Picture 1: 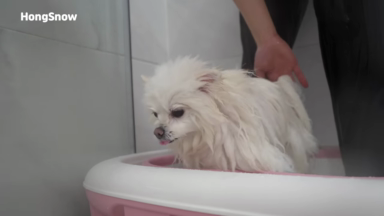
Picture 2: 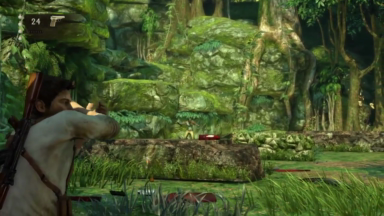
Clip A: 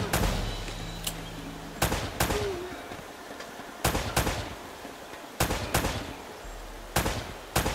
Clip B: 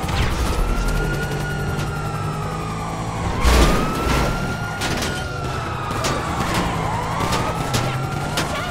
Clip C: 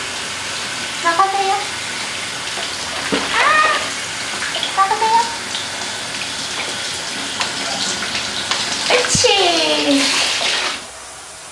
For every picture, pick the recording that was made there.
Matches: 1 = C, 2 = A